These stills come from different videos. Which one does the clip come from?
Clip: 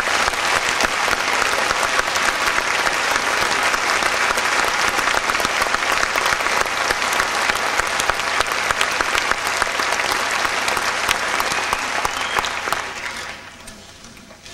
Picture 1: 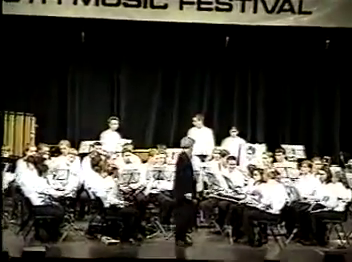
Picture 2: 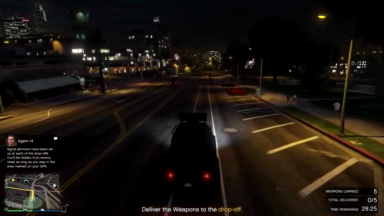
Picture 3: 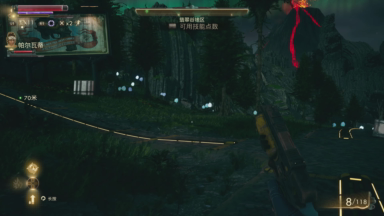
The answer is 1